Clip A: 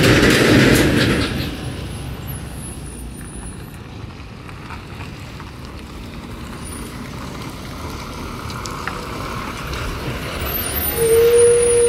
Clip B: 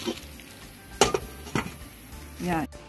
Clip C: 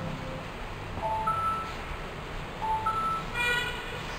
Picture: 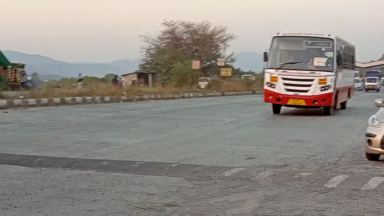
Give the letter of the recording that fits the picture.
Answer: A